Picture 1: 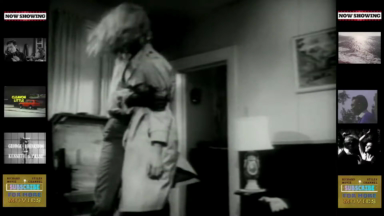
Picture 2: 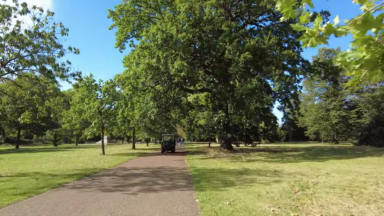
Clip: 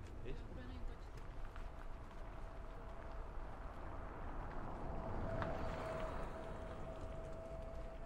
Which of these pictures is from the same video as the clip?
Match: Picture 2